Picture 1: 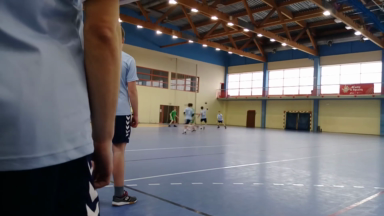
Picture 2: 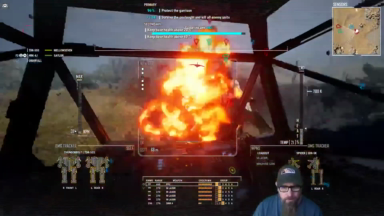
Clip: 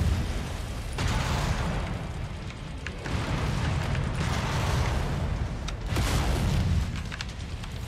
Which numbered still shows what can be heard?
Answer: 2